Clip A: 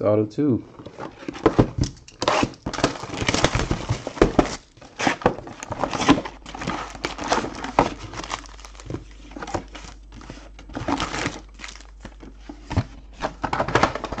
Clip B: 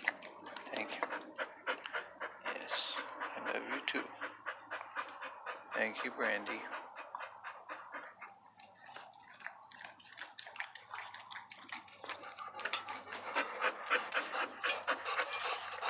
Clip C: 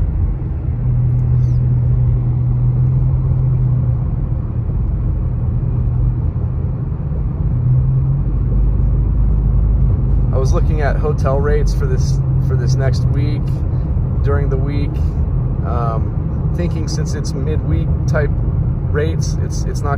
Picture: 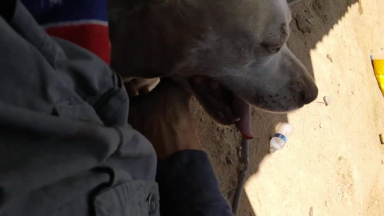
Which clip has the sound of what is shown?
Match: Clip B